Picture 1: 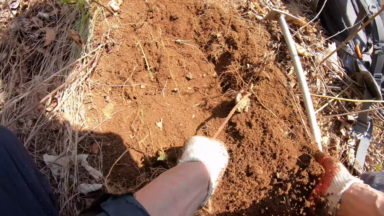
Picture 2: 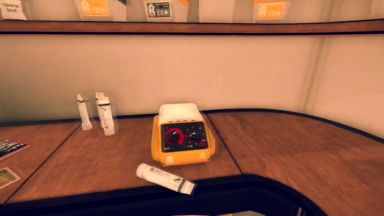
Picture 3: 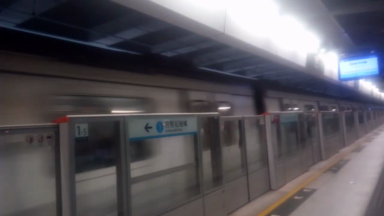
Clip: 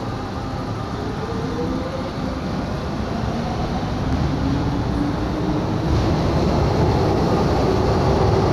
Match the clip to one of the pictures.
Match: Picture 3